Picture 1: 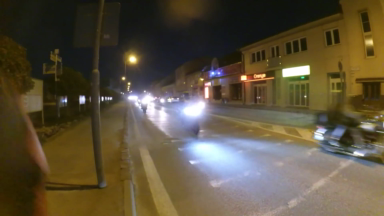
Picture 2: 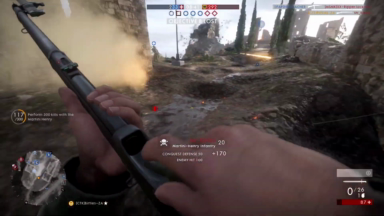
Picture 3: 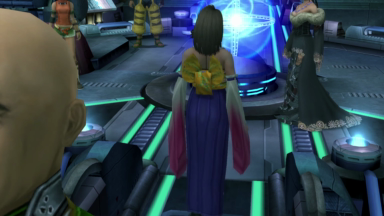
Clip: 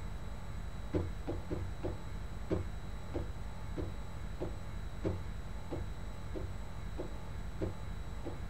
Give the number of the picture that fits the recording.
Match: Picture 3